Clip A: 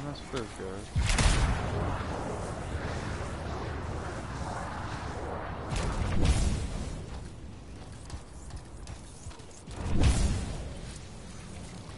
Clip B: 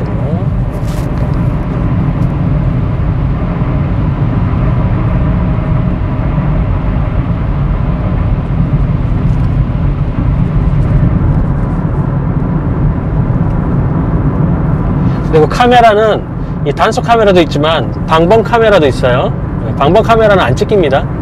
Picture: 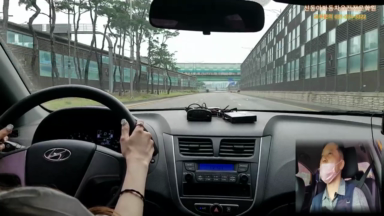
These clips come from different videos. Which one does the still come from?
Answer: B